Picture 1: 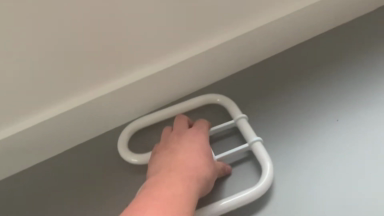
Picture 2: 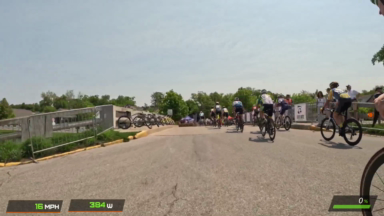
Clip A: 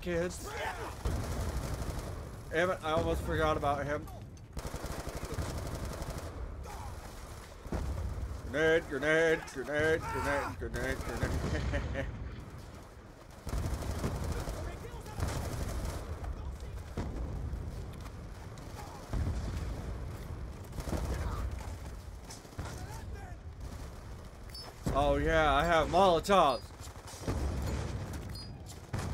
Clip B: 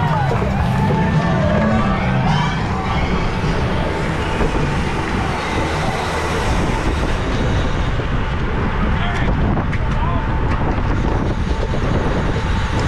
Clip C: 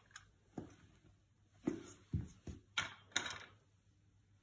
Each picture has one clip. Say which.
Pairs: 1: C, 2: B